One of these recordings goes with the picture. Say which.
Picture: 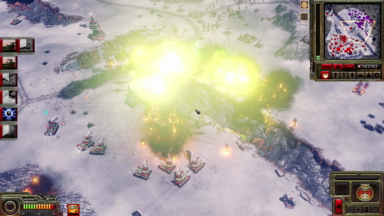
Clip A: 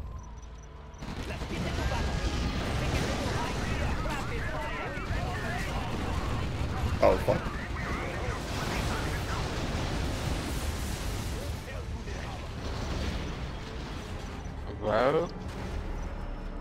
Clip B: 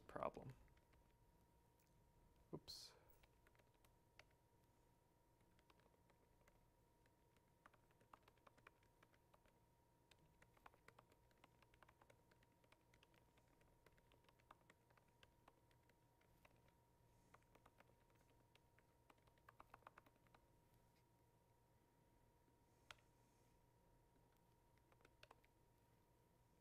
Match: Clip A